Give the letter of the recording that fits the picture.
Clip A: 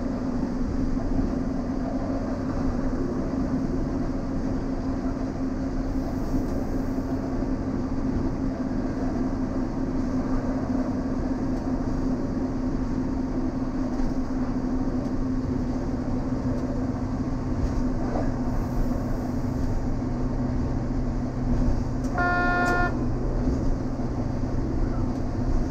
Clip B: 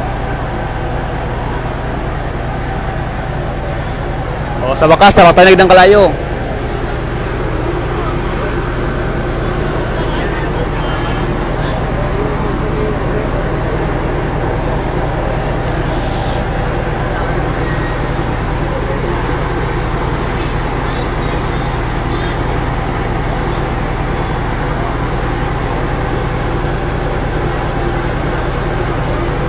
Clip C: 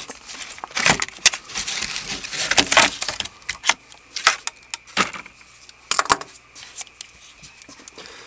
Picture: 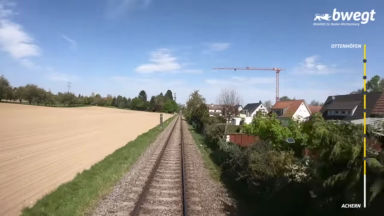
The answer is A